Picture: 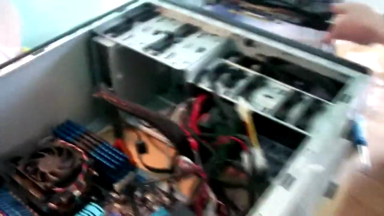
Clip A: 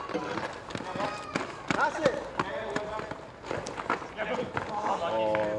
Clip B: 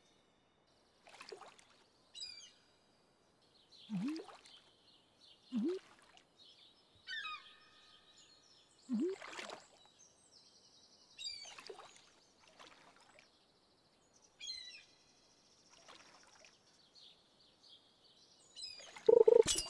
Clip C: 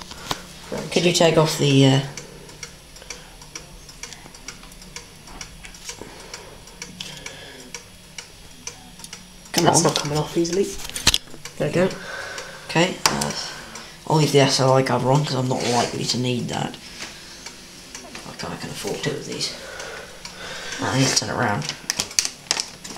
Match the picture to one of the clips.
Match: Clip C